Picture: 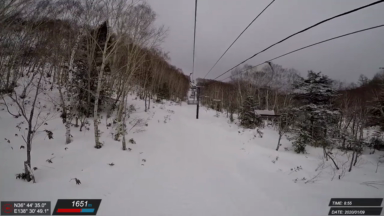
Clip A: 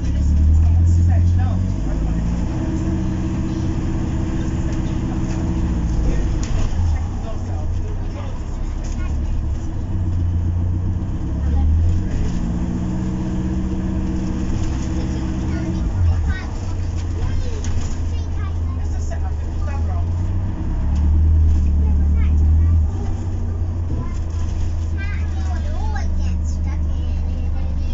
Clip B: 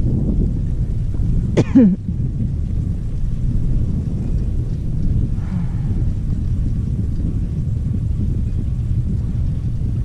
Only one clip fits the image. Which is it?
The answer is B